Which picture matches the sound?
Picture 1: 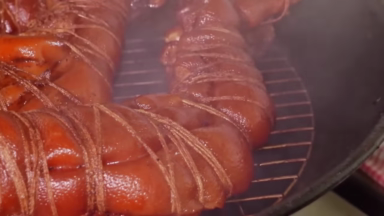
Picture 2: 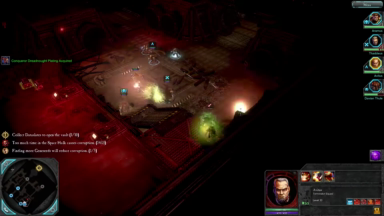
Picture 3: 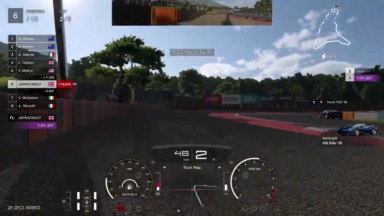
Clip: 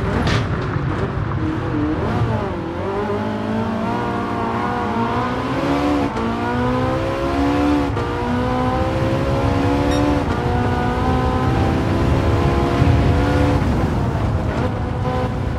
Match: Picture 3